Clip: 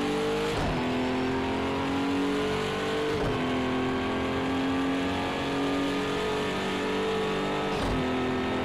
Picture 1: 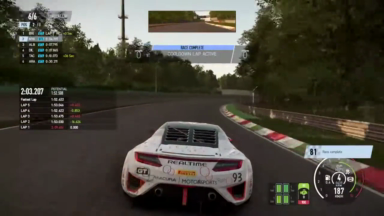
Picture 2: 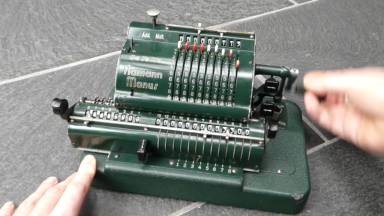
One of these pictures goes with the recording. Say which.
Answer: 1